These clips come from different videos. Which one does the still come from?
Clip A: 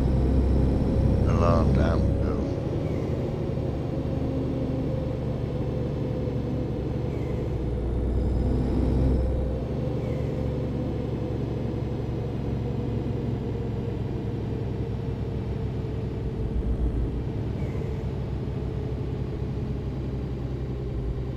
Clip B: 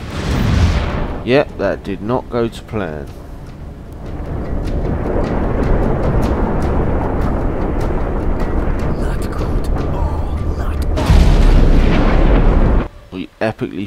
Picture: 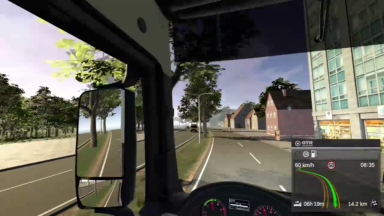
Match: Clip A